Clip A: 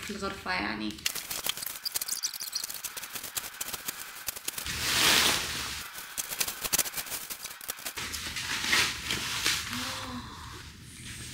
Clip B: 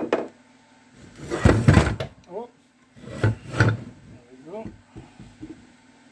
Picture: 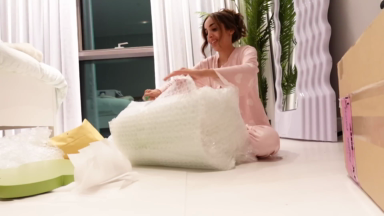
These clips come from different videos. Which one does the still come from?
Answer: A